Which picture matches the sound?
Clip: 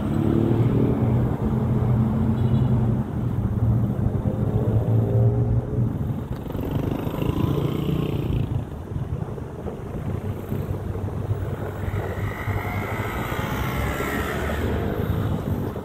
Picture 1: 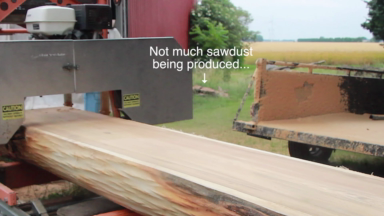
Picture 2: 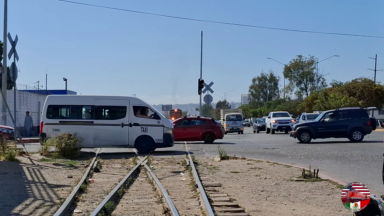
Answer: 2